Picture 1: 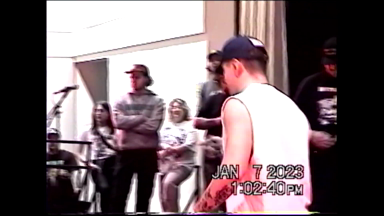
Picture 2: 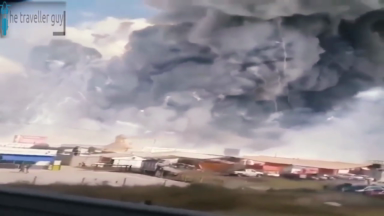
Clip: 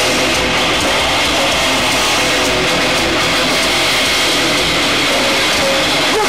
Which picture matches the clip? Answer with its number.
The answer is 1